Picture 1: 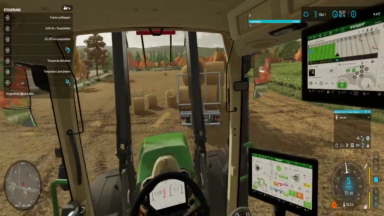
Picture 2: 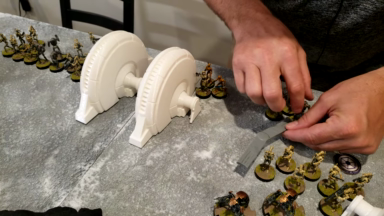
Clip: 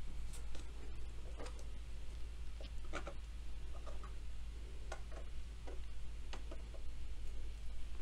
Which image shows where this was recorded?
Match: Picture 2